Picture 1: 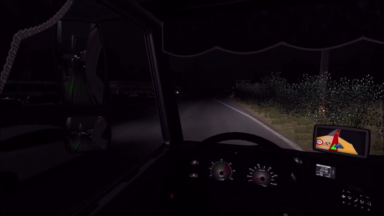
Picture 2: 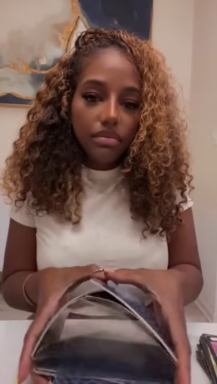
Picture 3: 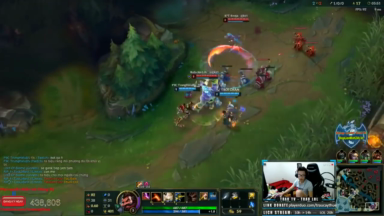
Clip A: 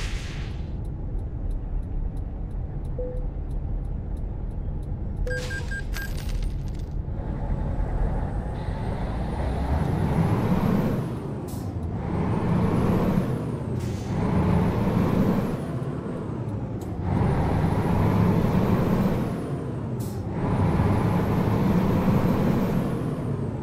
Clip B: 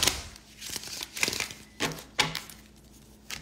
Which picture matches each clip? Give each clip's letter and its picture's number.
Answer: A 1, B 2